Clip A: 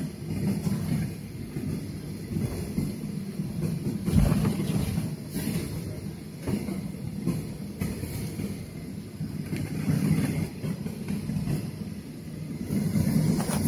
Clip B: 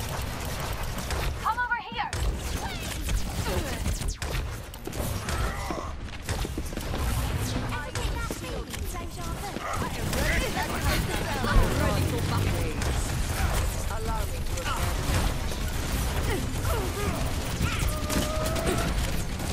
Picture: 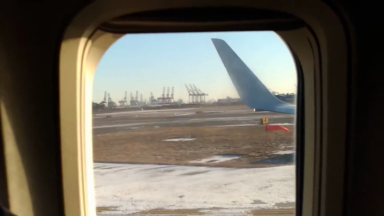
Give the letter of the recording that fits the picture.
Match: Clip A